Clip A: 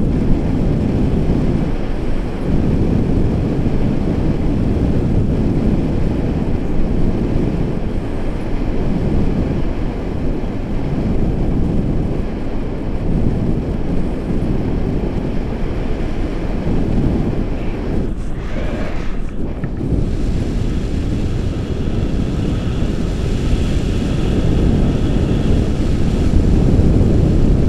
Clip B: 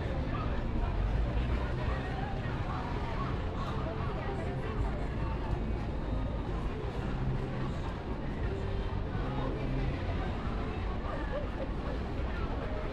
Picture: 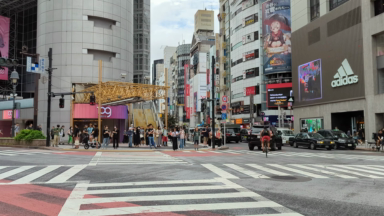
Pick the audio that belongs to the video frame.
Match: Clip B